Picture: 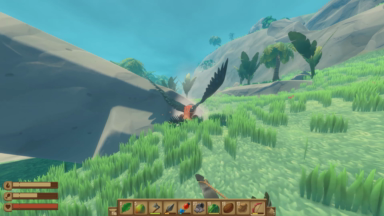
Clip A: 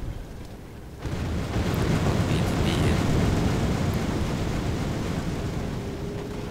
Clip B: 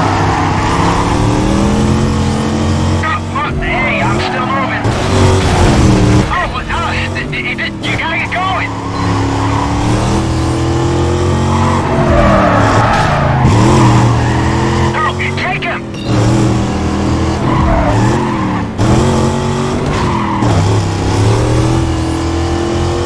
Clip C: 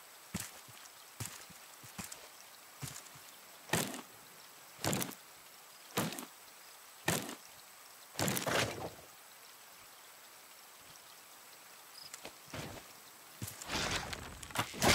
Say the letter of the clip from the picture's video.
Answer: C